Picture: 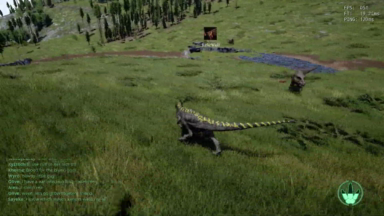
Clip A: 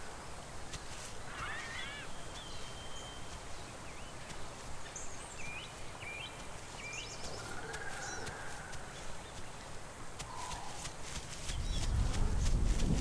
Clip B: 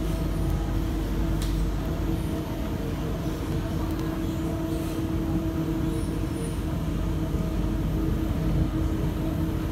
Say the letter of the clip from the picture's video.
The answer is A